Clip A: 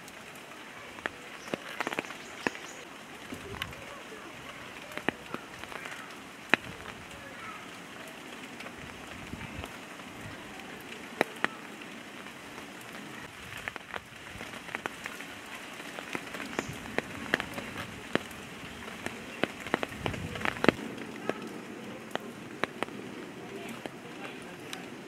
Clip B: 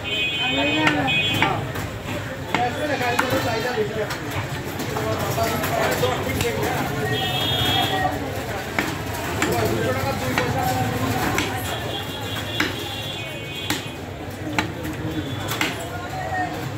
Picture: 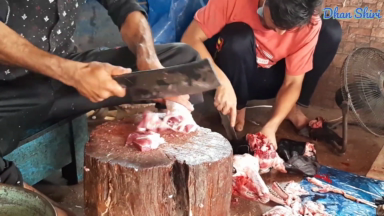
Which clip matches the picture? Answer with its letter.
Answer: B